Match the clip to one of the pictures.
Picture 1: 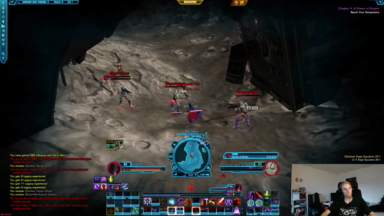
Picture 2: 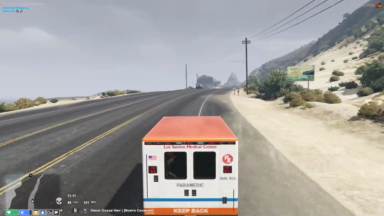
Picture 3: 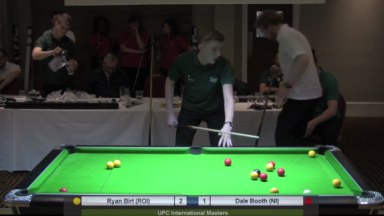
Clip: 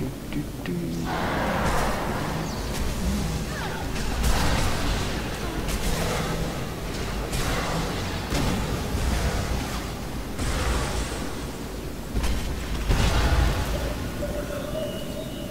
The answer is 1